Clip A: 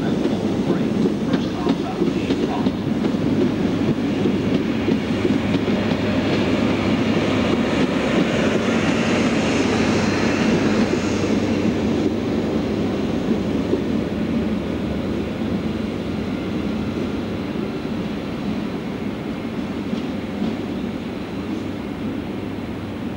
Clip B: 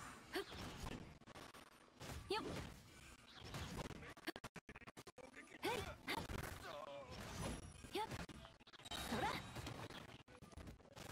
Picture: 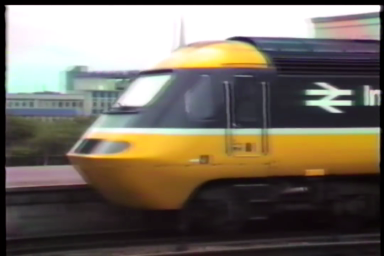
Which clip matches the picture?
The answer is A